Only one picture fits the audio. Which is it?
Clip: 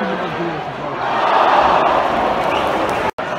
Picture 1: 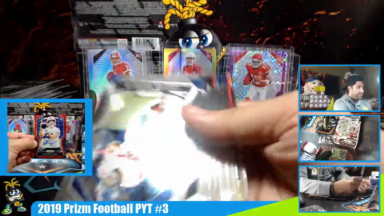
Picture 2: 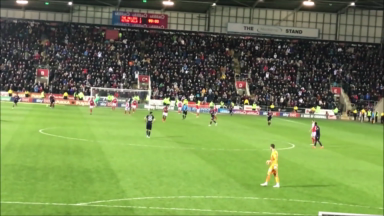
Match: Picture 2